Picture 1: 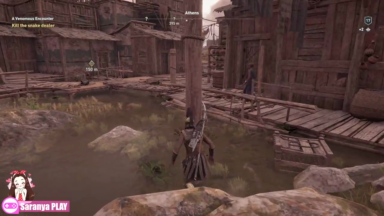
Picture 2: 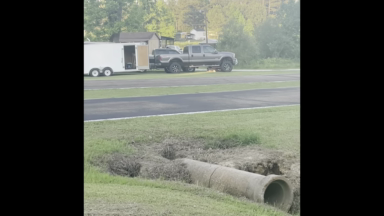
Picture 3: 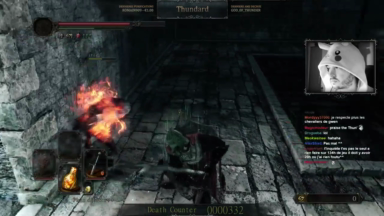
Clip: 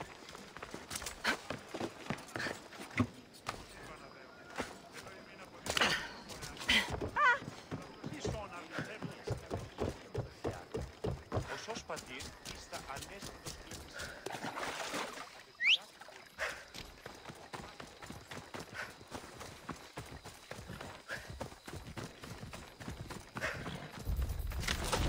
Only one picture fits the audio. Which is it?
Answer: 1